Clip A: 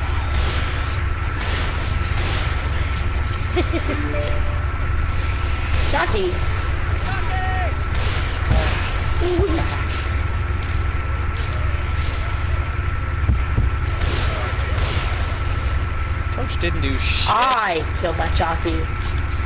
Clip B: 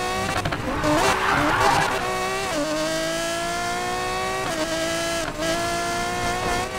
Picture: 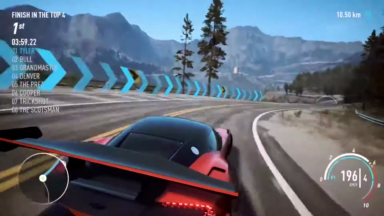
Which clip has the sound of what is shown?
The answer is B